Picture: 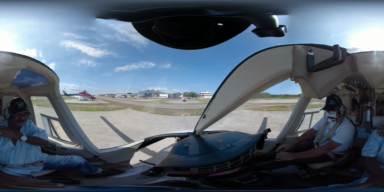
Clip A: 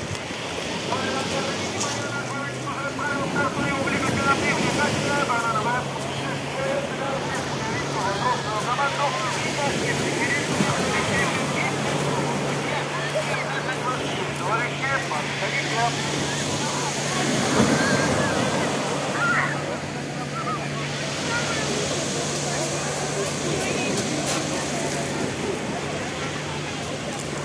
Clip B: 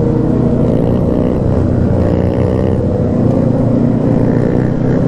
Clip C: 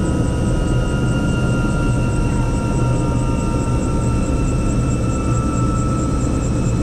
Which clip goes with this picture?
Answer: C